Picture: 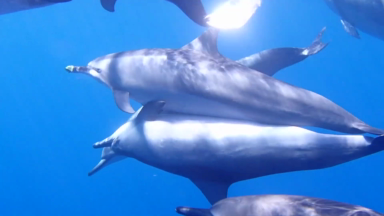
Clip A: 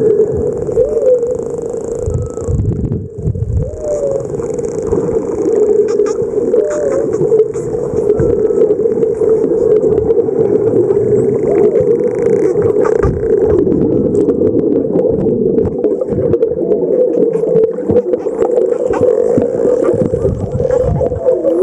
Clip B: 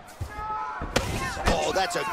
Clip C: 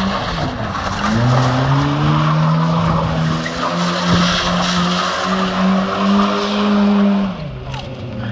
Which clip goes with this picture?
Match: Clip A